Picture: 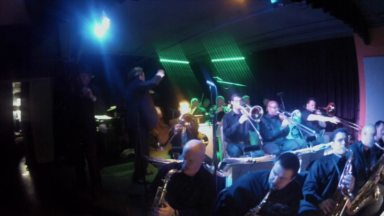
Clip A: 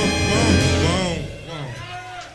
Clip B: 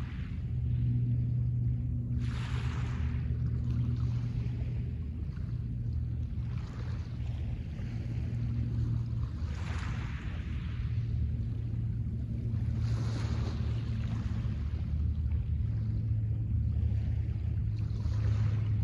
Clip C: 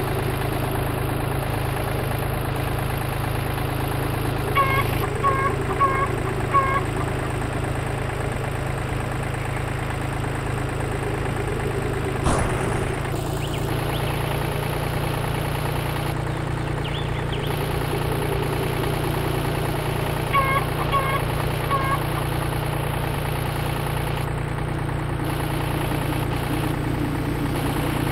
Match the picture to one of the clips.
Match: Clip A